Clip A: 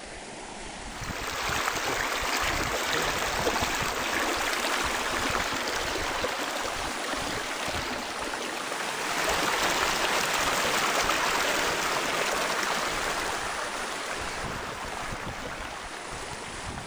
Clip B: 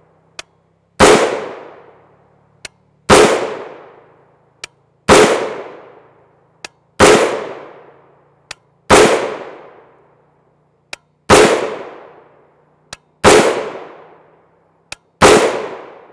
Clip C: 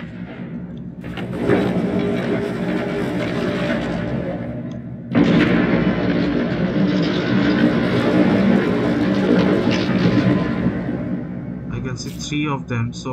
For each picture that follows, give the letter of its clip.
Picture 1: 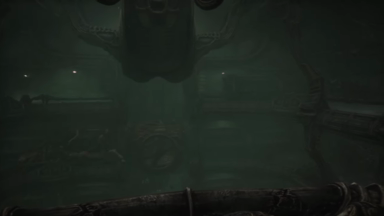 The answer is C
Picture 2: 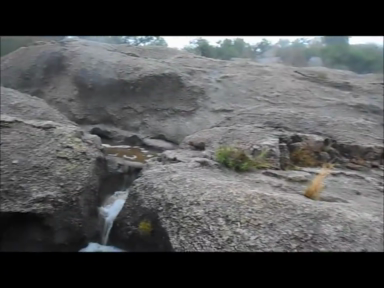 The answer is A